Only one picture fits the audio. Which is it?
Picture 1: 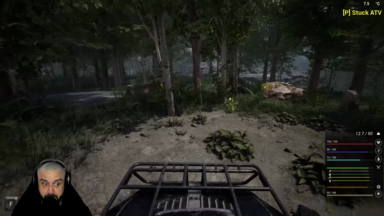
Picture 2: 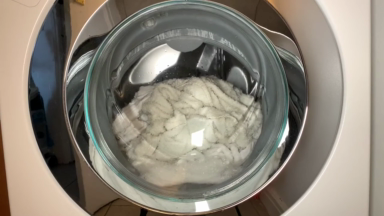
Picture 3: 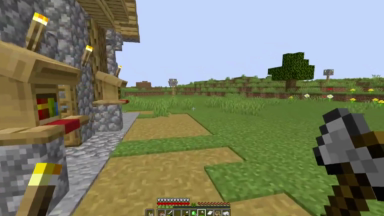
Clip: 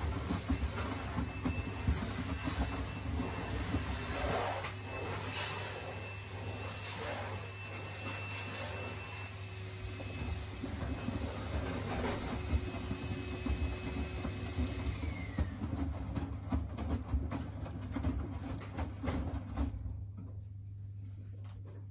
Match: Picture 2